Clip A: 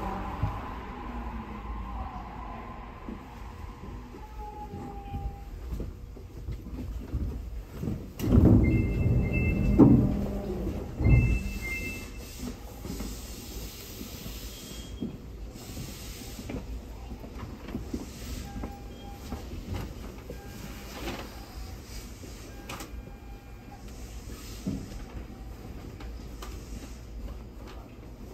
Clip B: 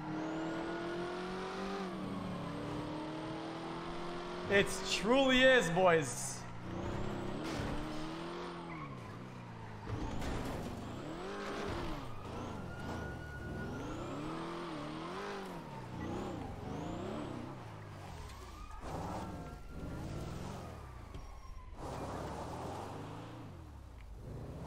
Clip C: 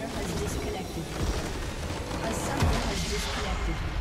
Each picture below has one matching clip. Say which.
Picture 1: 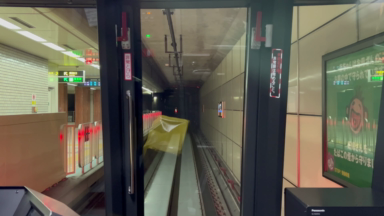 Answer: A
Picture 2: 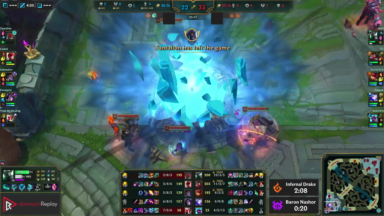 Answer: C